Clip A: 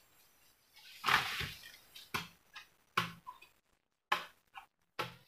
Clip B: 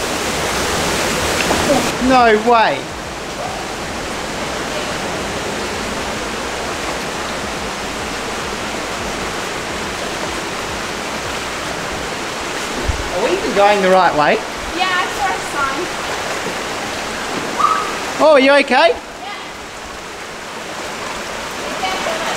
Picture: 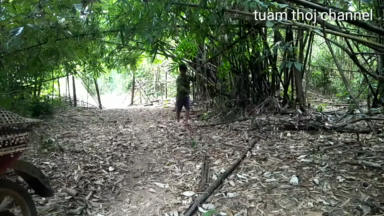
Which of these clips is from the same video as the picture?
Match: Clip A